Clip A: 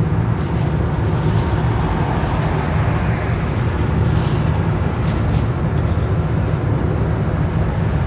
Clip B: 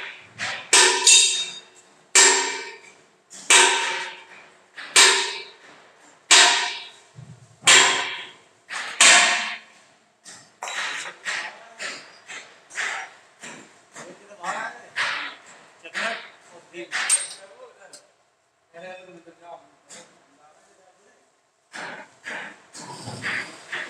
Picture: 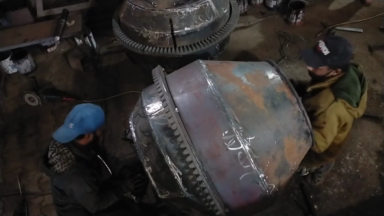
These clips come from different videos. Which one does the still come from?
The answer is B